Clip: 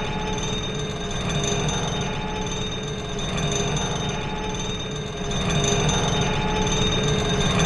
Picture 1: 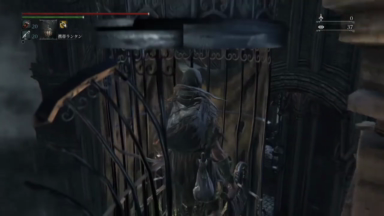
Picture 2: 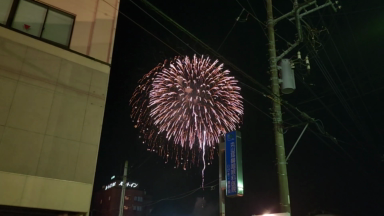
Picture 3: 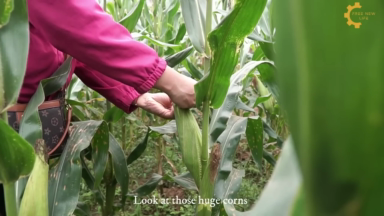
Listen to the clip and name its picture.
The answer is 1